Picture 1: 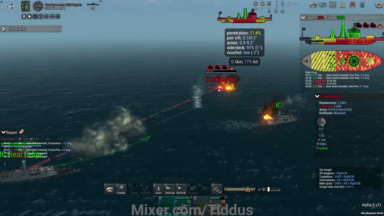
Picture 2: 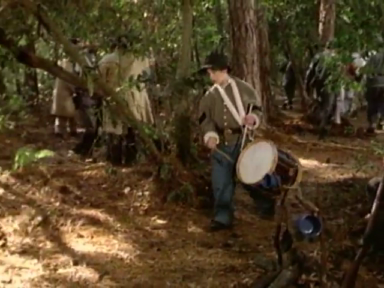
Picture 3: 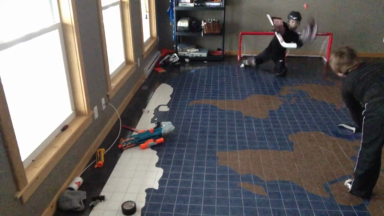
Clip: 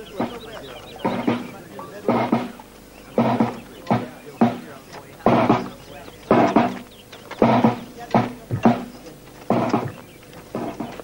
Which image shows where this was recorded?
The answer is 2